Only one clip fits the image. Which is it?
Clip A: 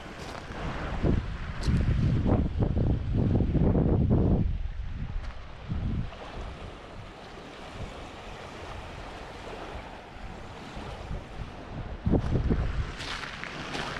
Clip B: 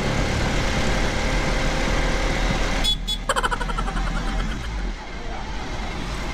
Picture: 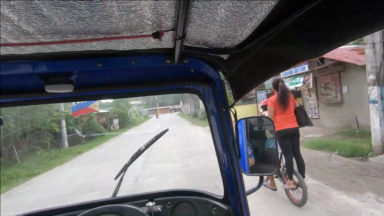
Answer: B